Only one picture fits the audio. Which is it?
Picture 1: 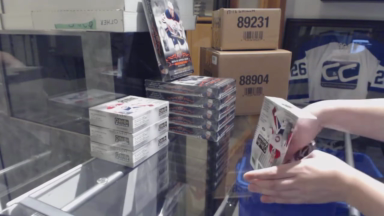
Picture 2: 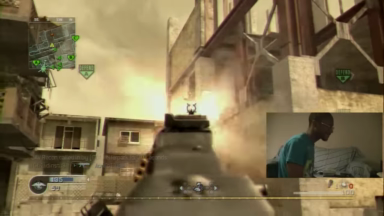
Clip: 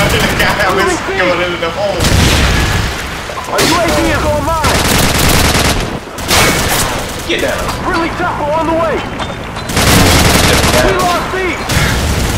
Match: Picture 2